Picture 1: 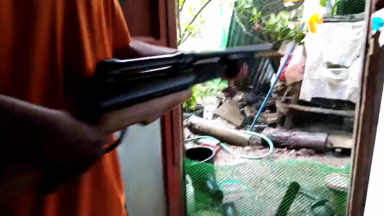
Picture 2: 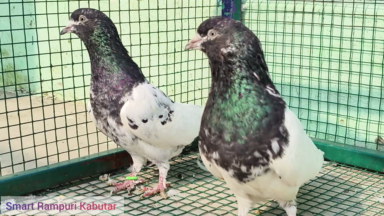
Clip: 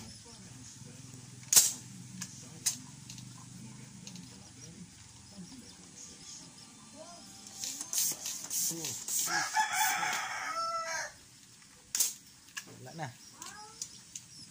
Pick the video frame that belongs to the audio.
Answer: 1